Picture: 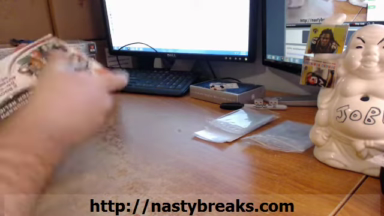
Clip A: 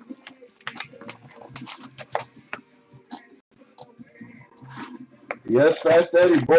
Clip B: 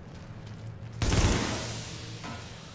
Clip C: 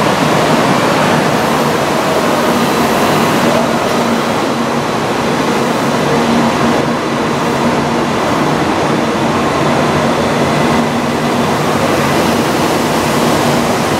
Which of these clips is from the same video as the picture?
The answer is A